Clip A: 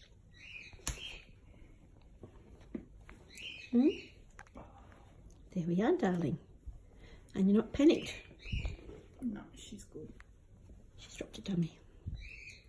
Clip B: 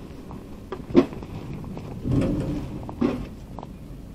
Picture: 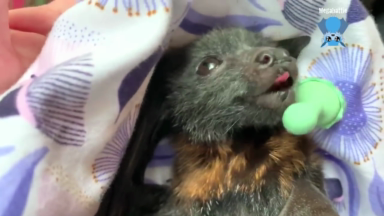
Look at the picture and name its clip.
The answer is A